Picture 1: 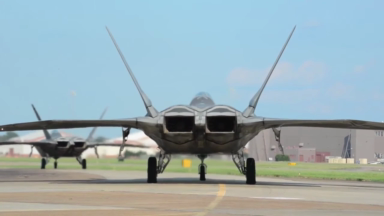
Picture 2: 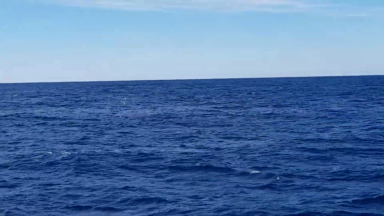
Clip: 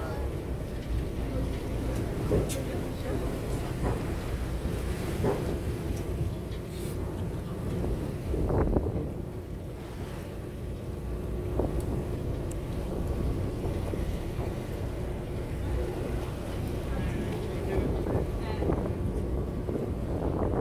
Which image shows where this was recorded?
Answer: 2